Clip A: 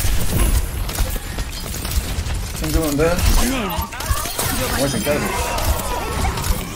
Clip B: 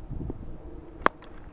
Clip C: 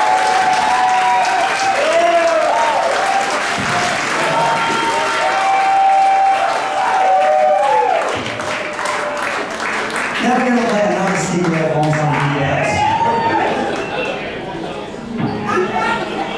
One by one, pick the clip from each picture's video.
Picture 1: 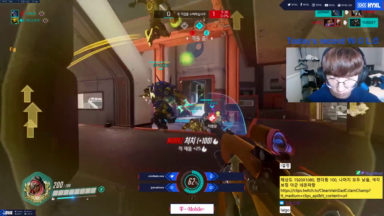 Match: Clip A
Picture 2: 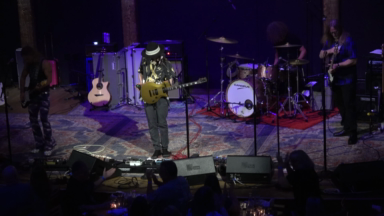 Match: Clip C